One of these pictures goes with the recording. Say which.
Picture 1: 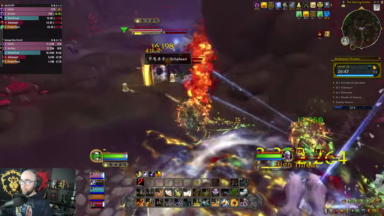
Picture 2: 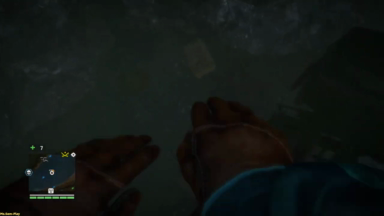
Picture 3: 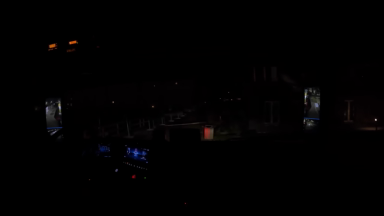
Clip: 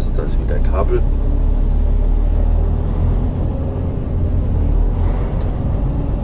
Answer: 3